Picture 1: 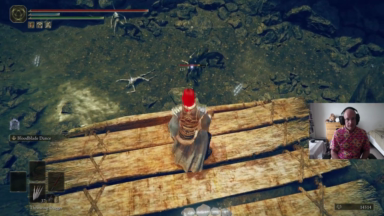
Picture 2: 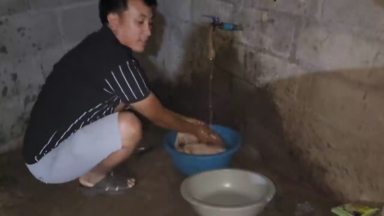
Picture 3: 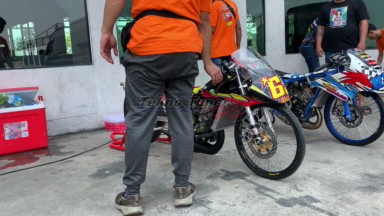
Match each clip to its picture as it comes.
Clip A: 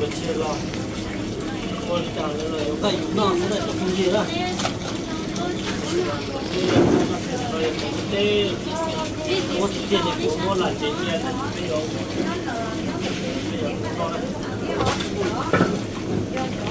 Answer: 2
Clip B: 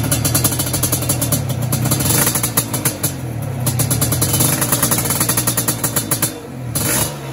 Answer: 3